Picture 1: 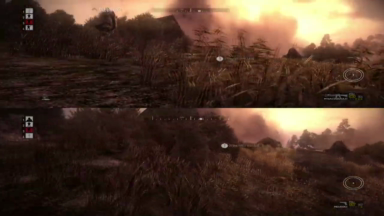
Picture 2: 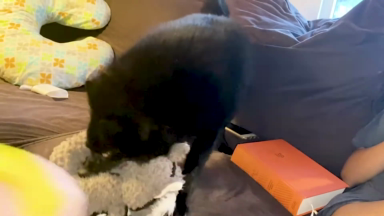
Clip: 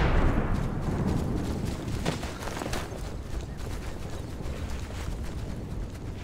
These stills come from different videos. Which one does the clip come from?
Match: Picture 1